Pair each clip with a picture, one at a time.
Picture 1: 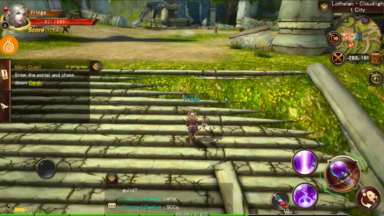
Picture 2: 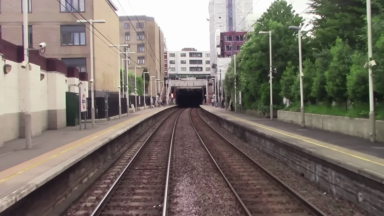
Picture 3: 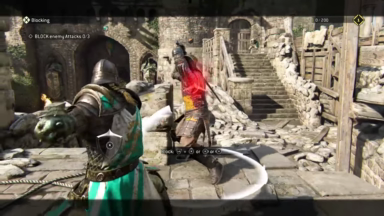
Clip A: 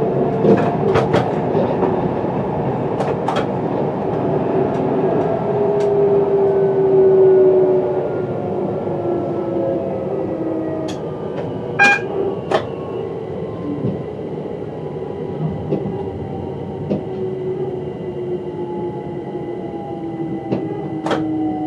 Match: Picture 2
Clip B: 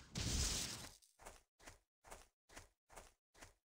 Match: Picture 1